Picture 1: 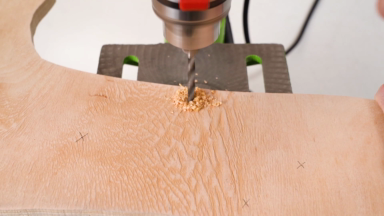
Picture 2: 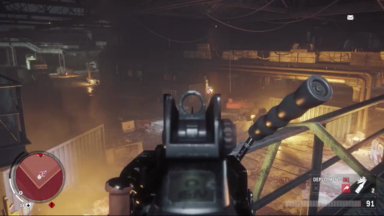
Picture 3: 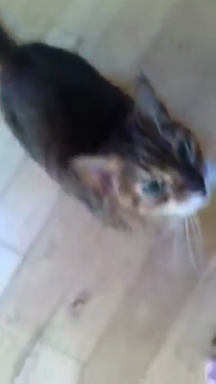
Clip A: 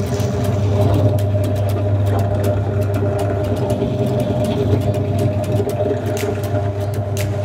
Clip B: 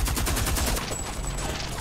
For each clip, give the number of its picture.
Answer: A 1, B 2